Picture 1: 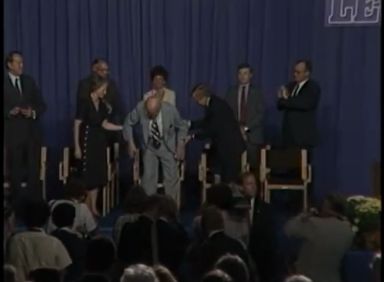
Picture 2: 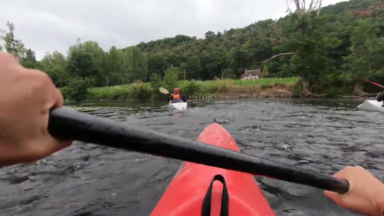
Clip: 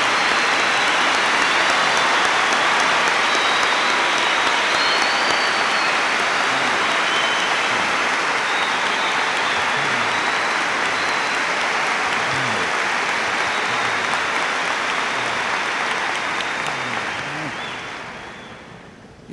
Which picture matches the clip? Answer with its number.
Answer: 1